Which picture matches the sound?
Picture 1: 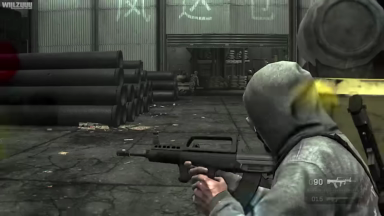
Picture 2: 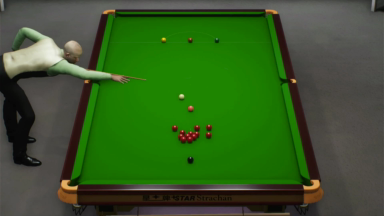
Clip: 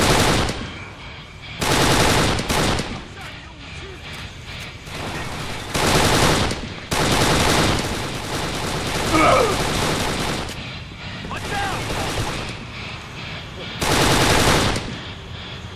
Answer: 1